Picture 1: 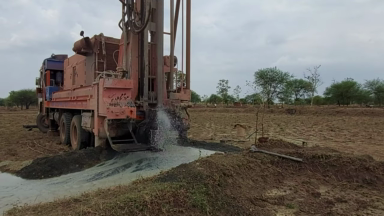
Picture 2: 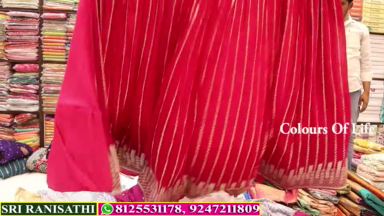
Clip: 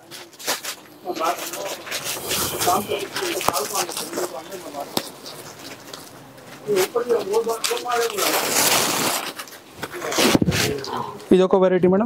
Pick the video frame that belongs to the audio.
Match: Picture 2